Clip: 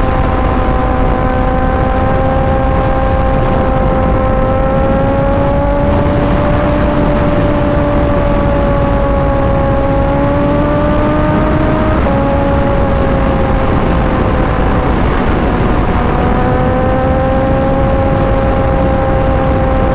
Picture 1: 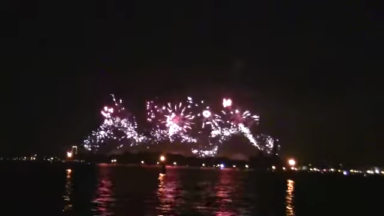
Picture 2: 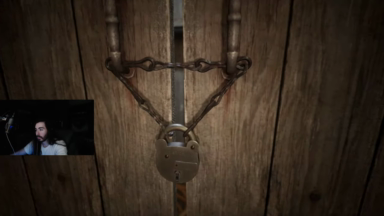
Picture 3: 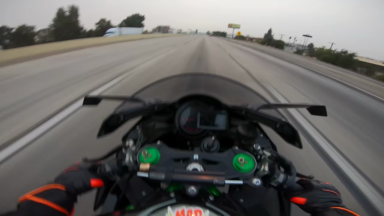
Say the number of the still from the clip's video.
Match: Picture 3